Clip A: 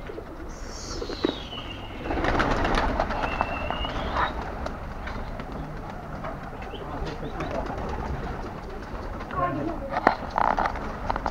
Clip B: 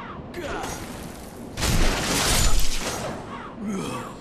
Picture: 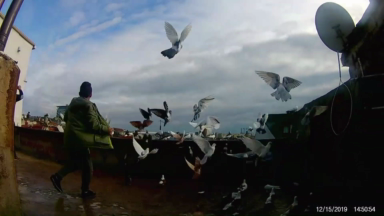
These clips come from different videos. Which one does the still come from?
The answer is A